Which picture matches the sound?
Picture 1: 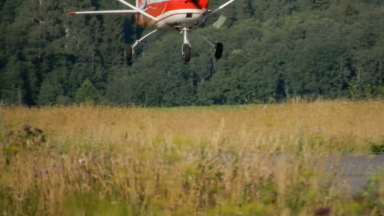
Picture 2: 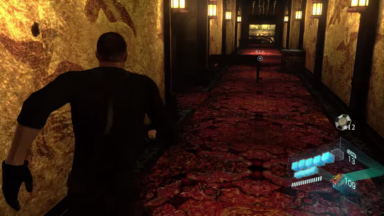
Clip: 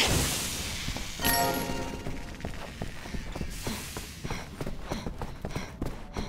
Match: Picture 2